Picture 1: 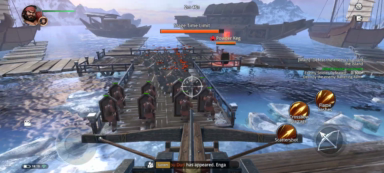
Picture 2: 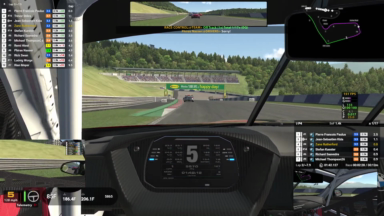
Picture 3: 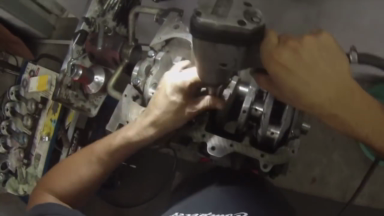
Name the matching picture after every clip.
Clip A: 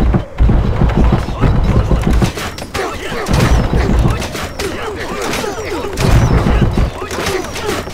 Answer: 1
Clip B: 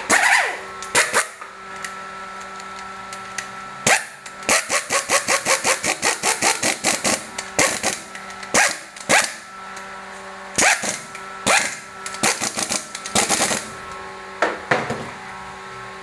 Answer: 3